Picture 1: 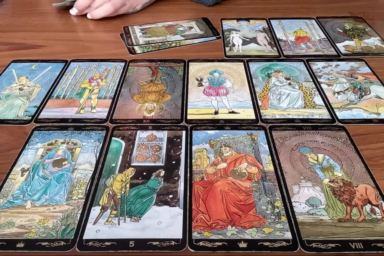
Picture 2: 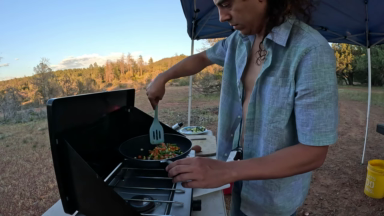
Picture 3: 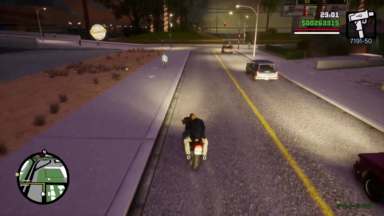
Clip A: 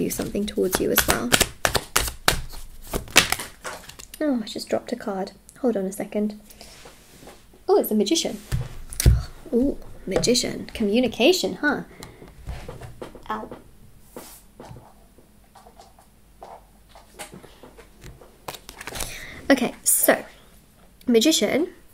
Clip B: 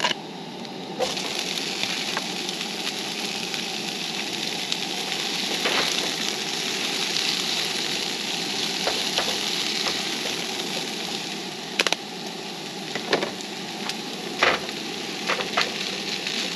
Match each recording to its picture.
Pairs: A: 1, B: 2